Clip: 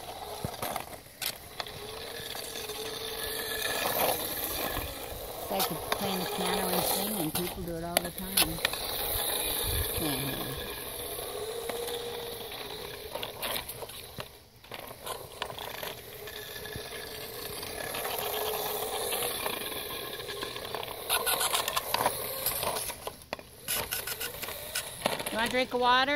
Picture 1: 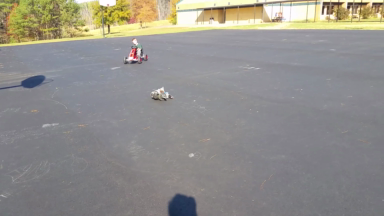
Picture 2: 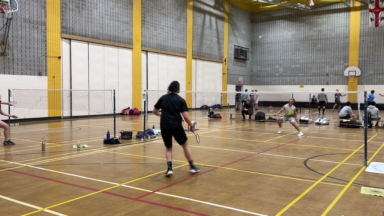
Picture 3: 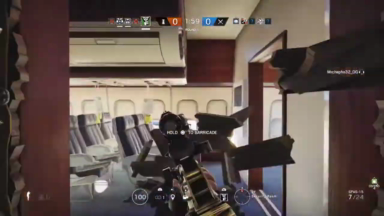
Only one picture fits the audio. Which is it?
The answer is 1